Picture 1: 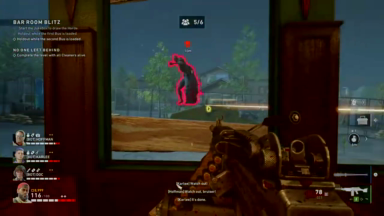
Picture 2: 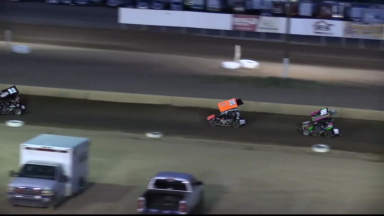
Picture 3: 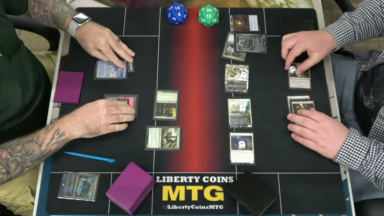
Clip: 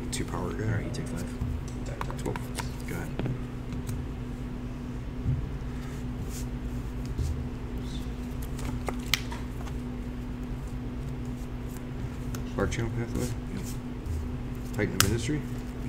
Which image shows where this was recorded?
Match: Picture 3